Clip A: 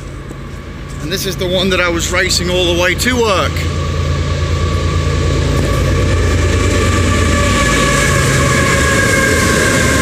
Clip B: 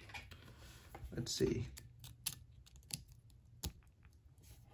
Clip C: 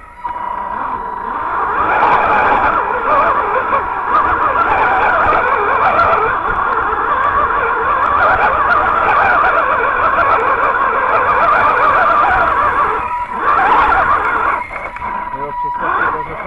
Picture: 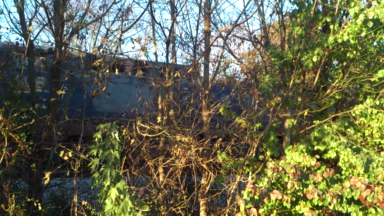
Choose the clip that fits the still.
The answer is A